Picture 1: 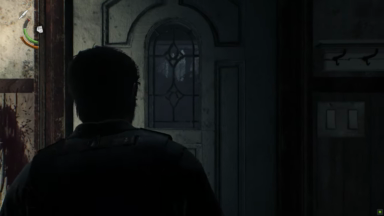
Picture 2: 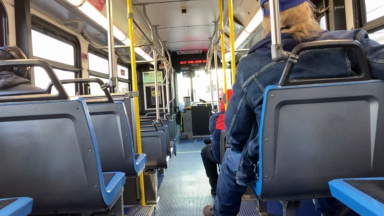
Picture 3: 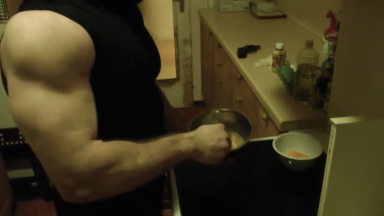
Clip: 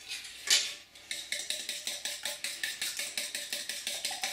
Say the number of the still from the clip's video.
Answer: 3